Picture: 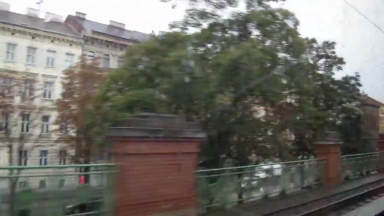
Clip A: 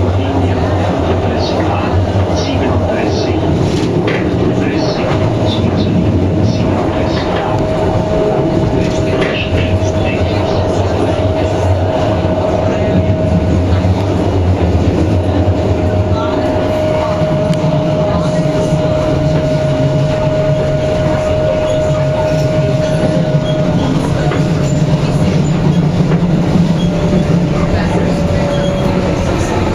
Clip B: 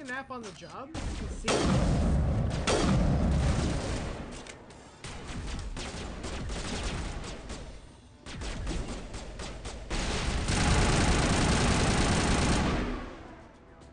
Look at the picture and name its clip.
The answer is A